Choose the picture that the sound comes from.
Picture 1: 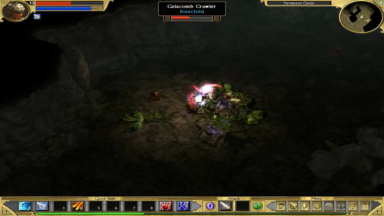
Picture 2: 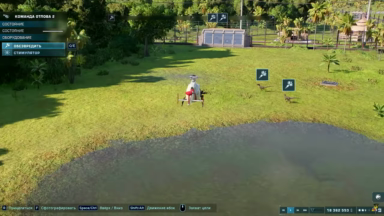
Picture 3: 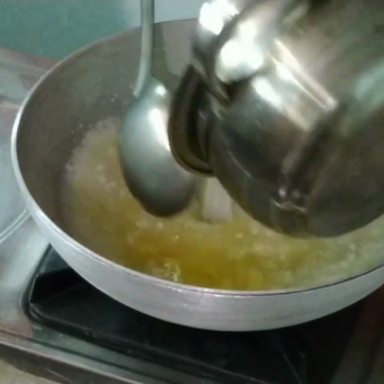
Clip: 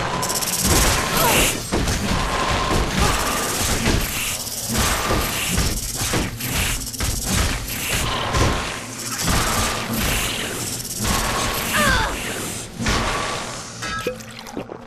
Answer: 1